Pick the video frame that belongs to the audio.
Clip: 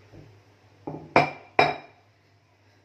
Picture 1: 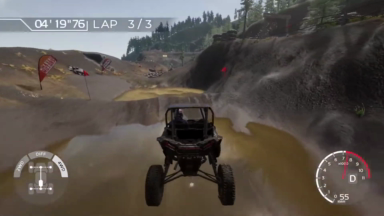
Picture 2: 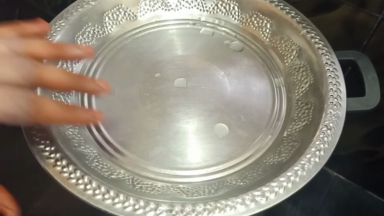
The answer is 2